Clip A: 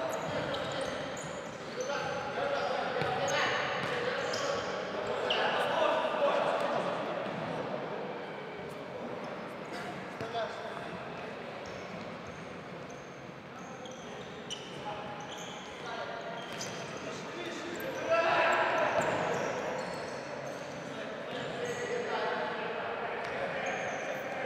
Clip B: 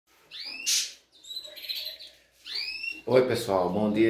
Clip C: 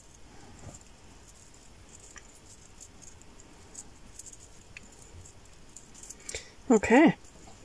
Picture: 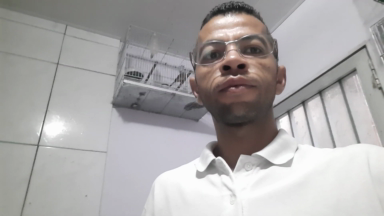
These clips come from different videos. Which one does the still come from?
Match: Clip B